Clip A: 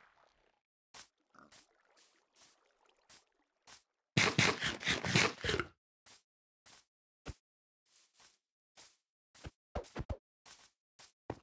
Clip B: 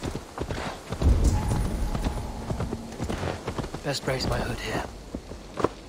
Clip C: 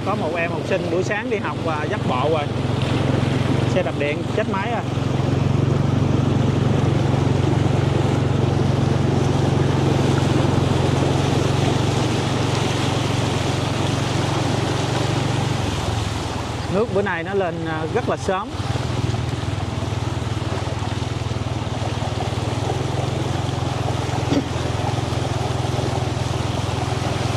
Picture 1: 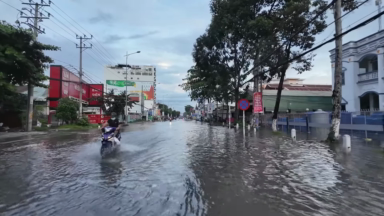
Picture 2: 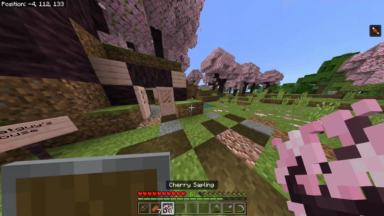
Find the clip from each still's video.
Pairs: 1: C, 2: A